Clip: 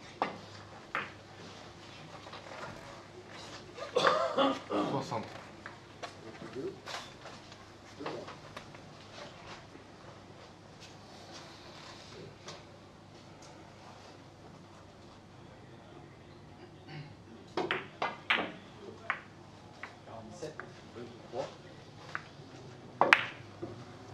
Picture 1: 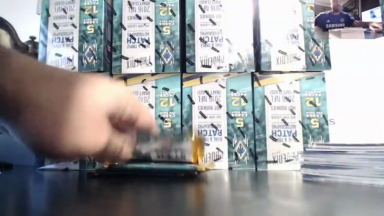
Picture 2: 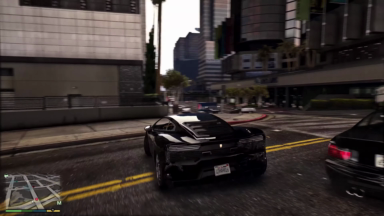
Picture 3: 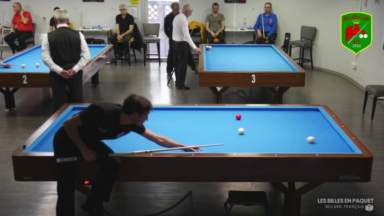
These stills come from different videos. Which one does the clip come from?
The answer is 3